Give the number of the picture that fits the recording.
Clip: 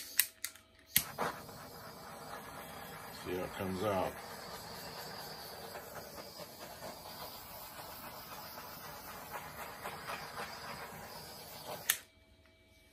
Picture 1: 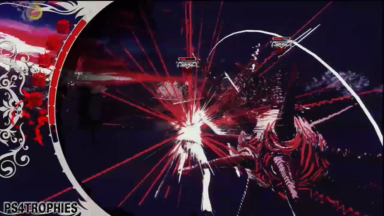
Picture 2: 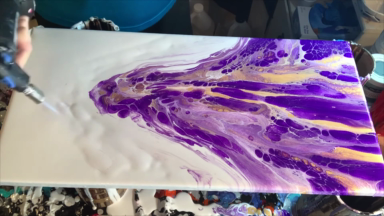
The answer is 2